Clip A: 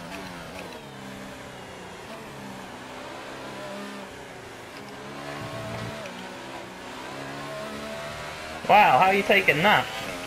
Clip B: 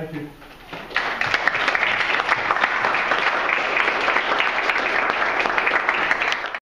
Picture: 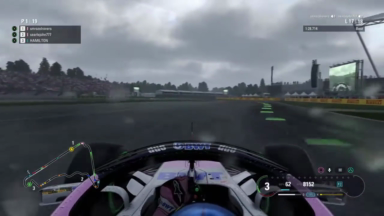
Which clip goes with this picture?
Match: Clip A